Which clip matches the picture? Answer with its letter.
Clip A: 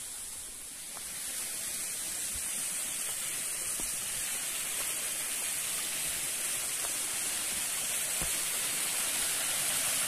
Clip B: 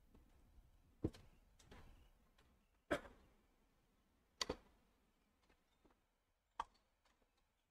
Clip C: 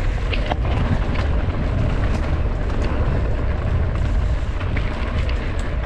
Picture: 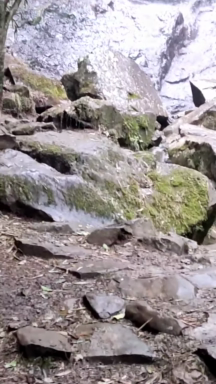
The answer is A